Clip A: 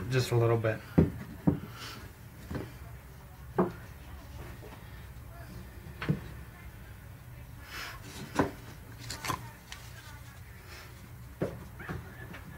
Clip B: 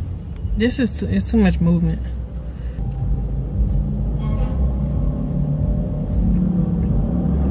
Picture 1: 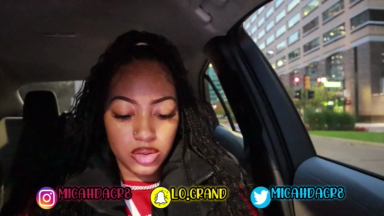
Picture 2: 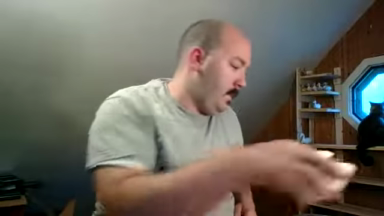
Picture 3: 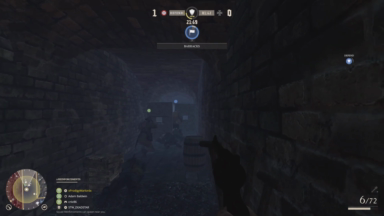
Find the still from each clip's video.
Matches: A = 2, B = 1